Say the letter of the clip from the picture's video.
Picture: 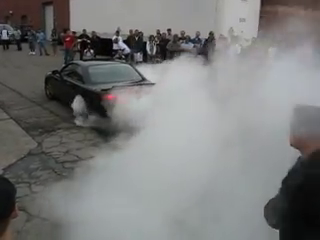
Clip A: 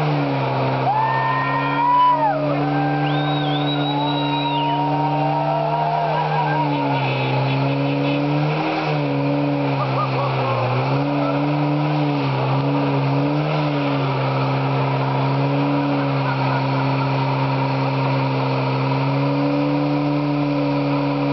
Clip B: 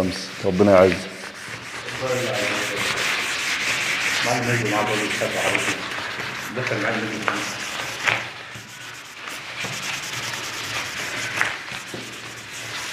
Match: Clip A